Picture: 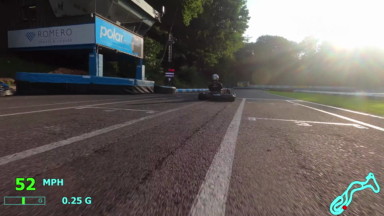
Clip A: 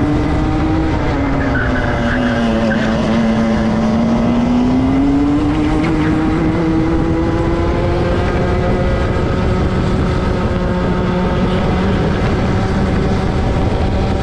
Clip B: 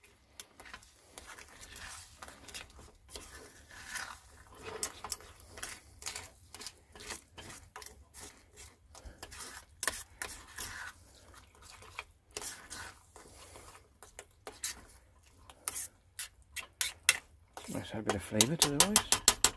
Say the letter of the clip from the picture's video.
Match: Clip A